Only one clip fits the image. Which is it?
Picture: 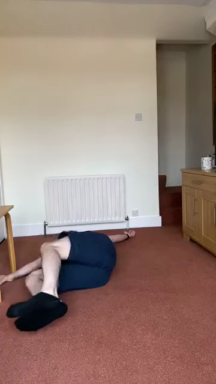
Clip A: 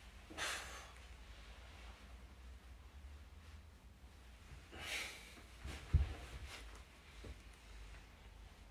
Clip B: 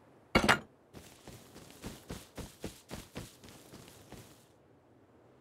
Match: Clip A